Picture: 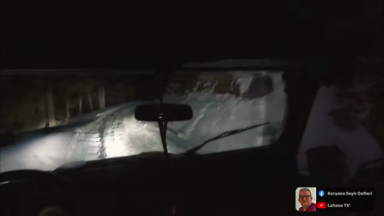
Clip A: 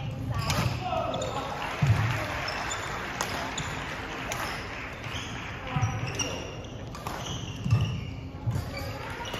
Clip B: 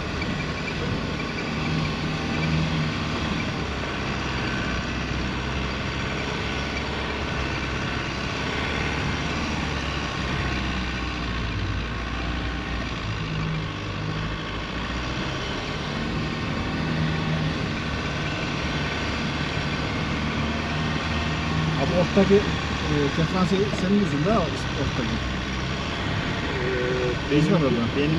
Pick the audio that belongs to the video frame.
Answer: B